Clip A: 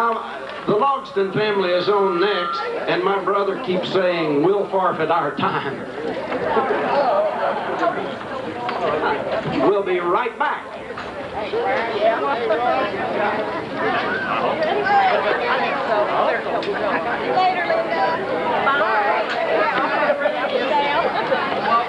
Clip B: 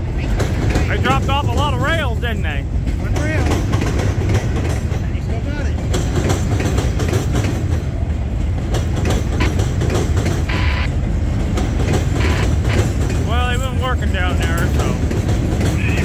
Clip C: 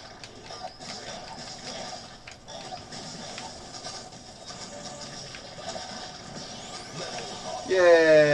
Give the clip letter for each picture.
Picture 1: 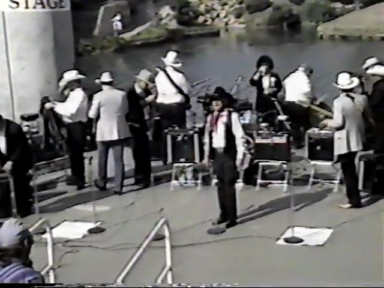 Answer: A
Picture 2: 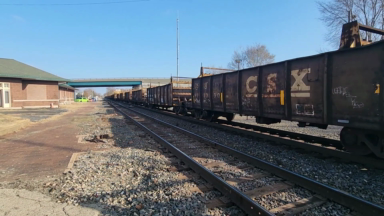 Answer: B